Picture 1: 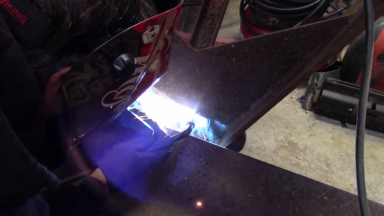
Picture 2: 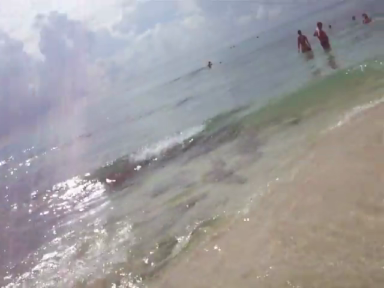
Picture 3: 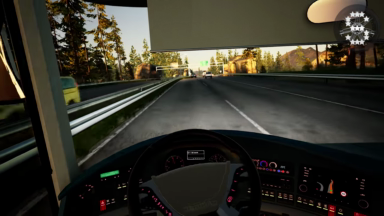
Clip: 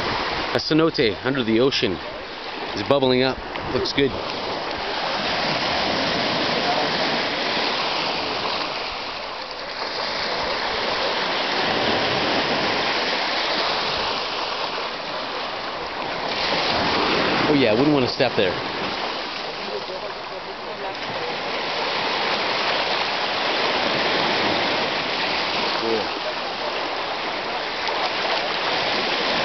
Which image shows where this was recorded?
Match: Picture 2